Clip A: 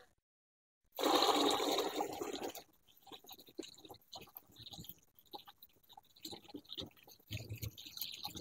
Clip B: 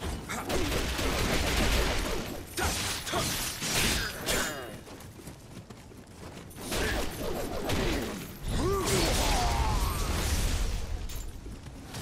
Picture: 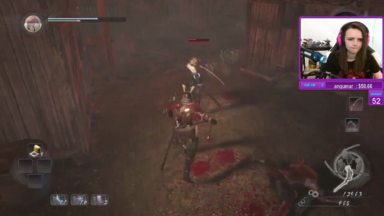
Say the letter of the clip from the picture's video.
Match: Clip B